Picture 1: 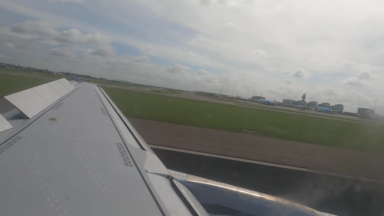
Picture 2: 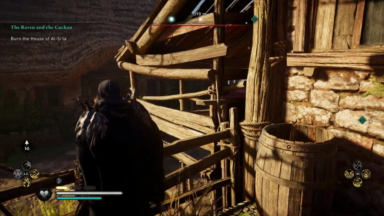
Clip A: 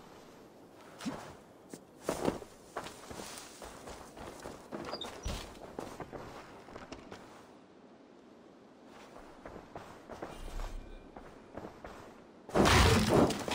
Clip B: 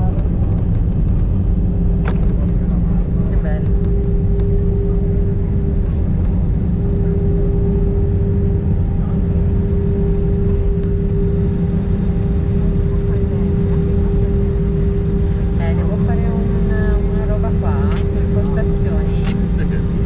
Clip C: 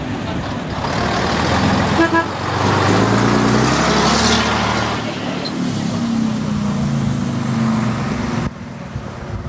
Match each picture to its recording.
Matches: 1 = B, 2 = A